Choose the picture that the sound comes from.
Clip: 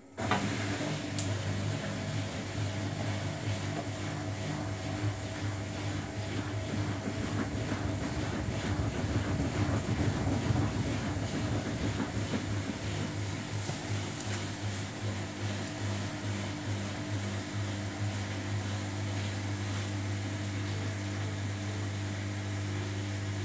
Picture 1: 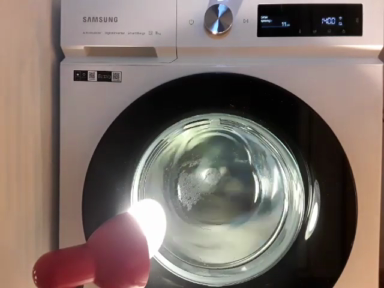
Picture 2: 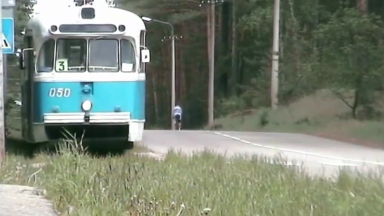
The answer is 1